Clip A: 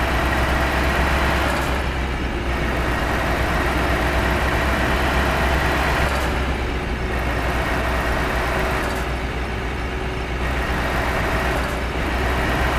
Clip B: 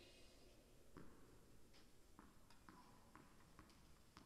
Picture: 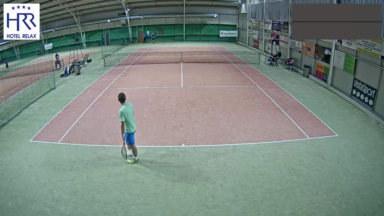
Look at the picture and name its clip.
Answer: B